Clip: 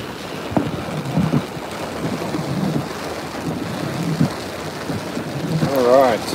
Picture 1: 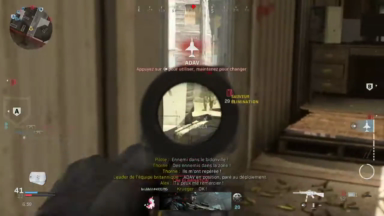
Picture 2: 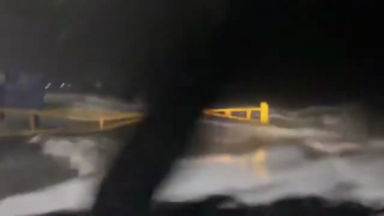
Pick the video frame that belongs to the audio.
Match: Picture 2